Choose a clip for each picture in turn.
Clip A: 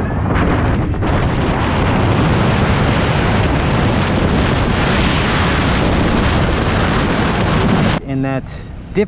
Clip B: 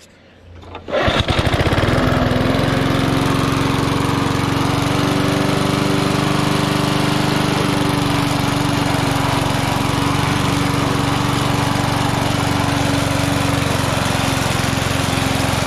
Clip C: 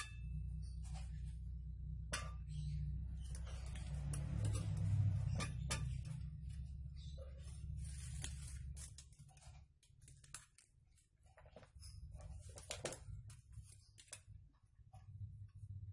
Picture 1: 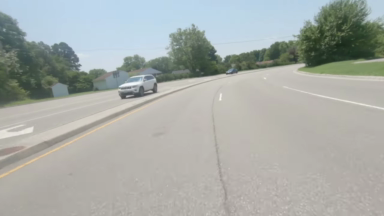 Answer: A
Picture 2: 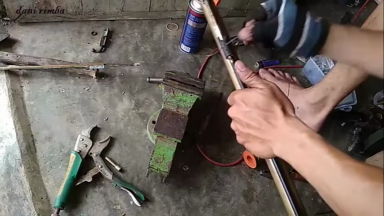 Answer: C